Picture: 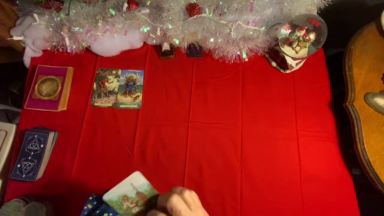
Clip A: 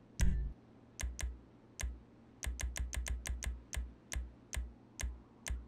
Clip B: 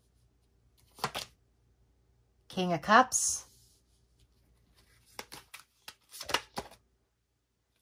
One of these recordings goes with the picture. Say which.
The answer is B